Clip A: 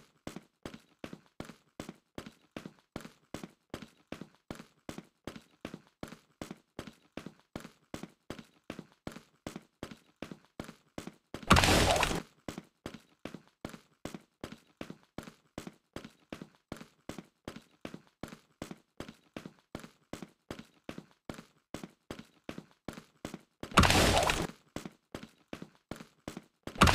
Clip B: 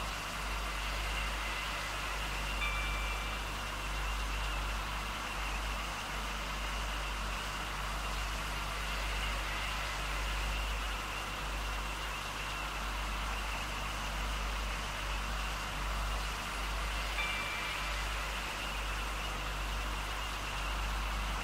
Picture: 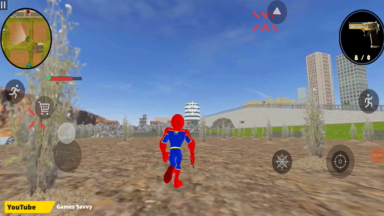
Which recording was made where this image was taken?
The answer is A